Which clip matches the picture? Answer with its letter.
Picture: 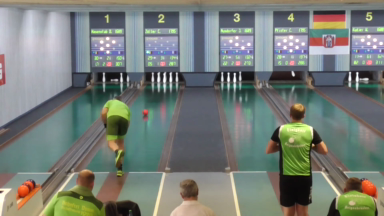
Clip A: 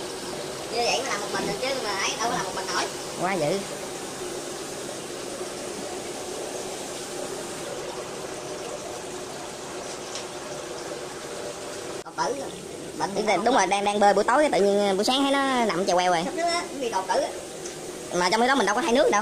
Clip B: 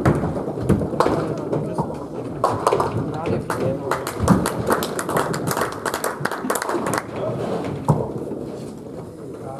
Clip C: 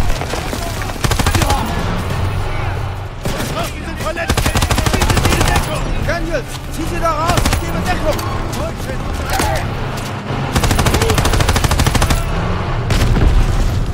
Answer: B